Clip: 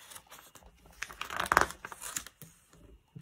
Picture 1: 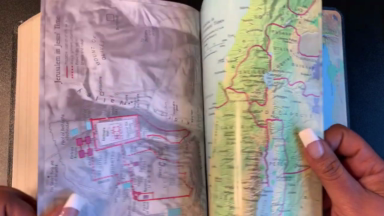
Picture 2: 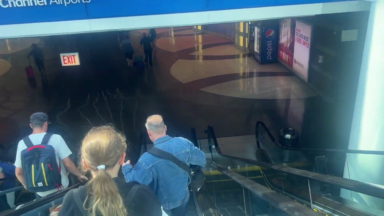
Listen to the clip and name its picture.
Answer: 1